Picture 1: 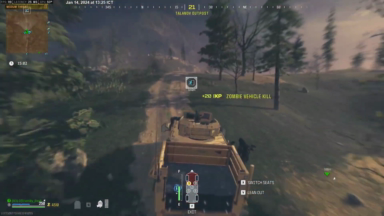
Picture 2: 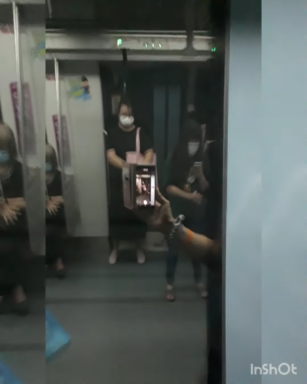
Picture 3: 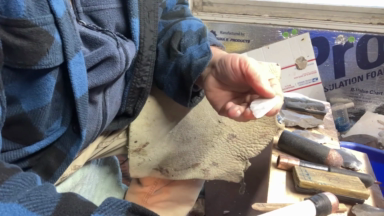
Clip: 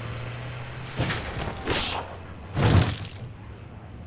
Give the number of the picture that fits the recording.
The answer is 1